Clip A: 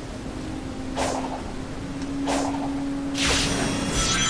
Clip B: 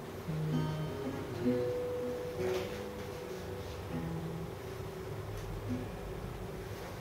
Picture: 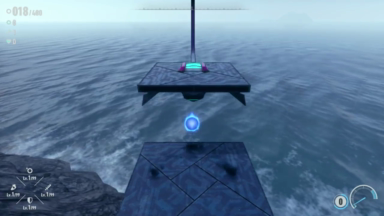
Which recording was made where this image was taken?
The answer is A